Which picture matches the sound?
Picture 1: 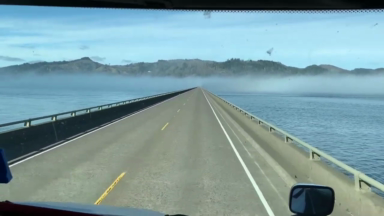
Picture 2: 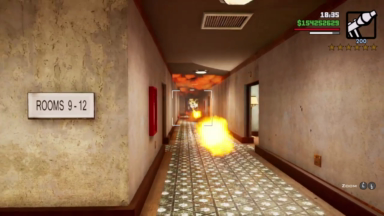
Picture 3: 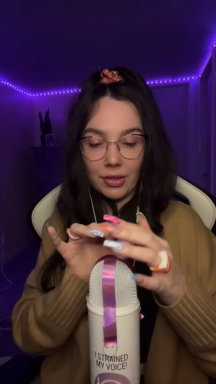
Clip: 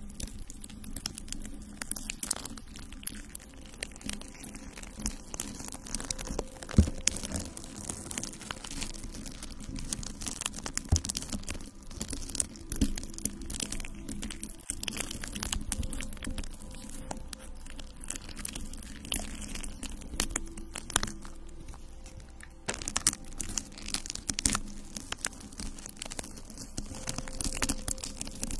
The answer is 3